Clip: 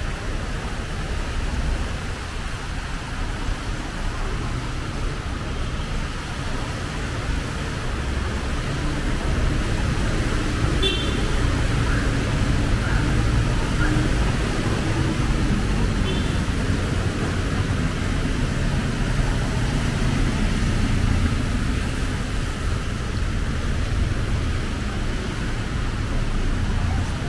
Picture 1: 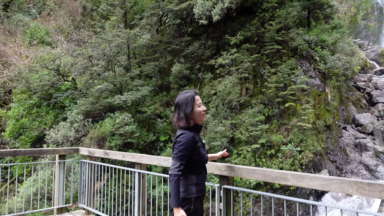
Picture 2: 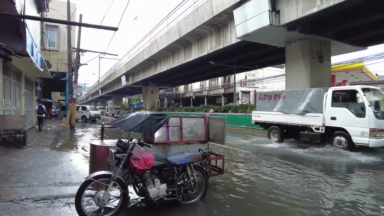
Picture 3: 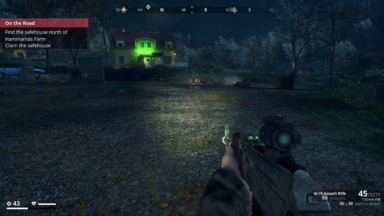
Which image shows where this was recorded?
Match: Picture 2